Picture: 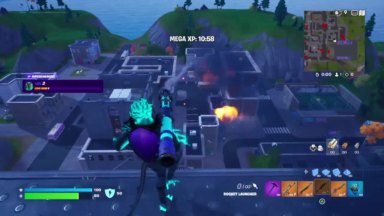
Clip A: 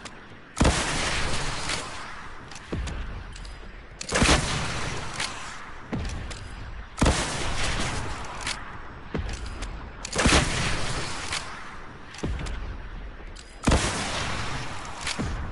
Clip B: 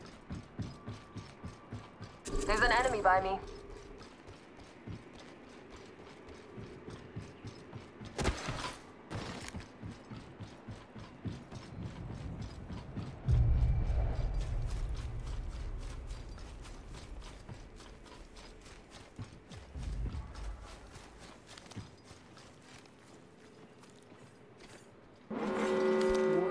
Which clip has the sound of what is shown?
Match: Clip A